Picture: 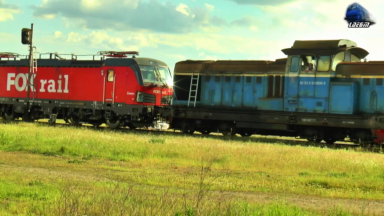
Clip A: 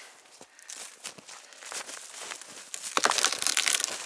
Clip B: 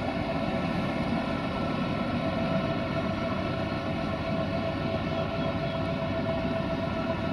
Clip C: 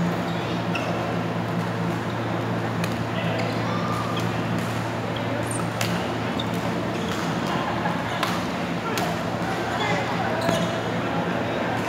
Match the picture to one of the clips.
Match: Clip B